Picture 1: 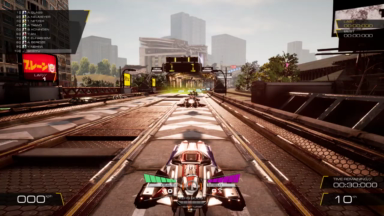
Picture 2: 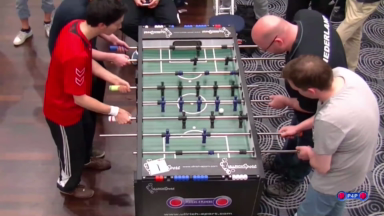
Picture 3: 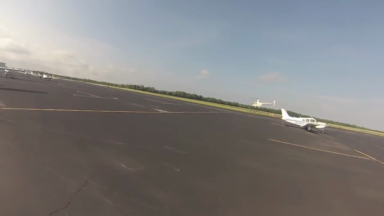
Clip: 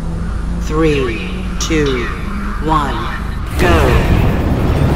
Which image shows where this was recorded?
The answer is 1